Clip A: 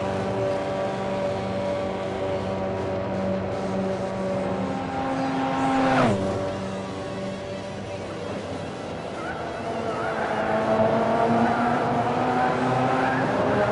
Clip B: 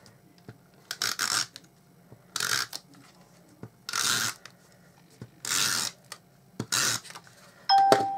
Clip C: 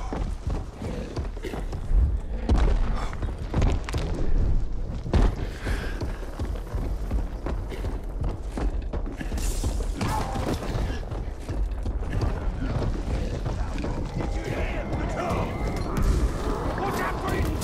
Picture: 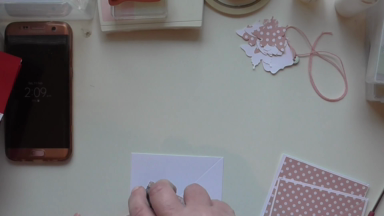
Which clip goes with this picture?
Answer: B